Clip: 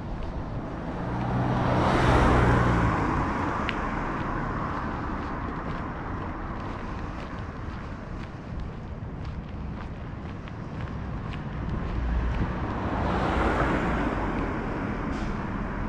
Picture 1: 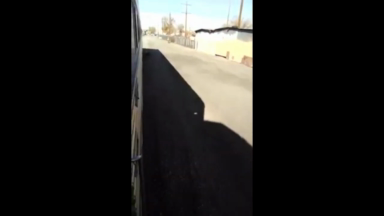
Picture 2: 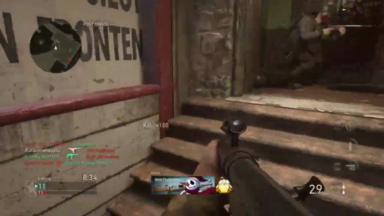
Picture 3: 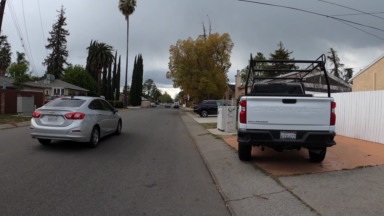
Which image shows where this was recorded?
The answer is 3